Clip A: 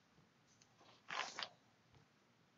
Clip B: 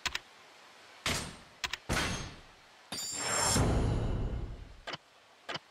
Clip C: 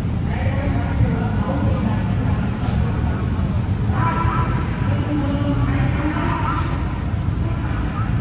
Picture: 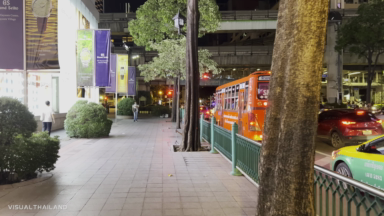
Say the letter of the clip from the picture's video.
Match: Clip C